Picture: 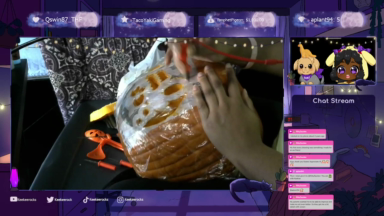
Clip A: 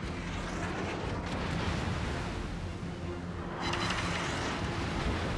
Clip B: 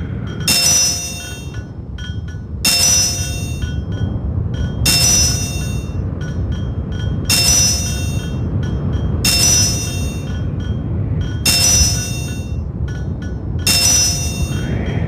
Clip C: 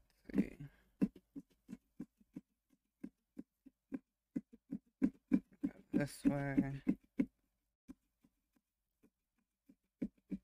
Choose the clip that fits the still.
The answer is C